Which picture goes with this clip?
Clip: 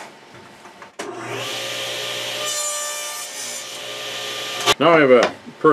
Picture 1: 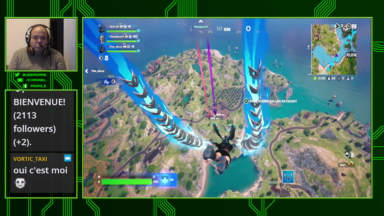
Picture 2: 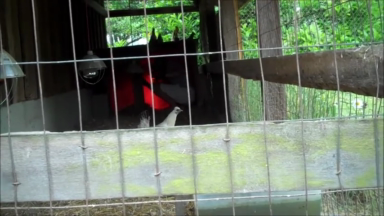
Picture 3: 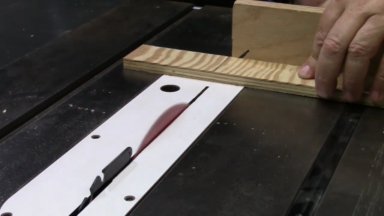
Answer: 3